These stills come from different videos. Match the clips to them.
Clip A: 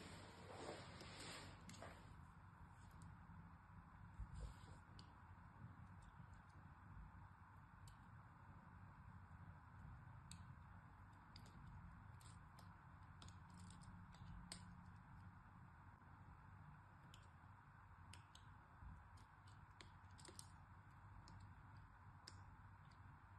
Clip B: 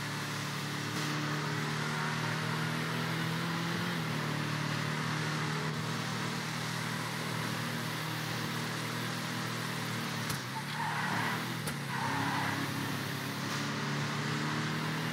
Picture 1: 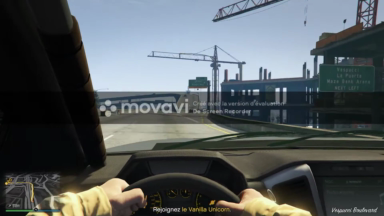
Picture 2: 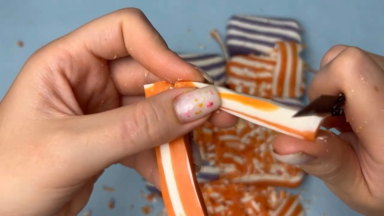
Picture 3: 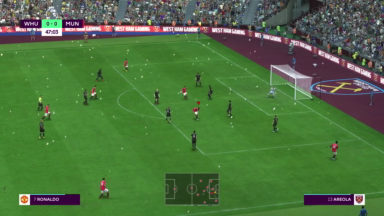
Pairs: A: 2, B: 1